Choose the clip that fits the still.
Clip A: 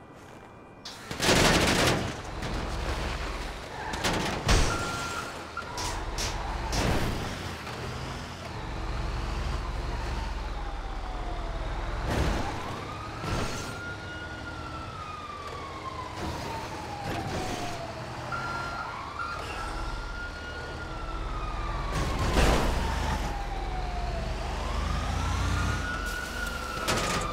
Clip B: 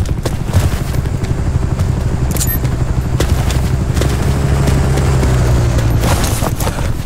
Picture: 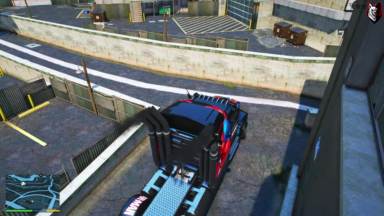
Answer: A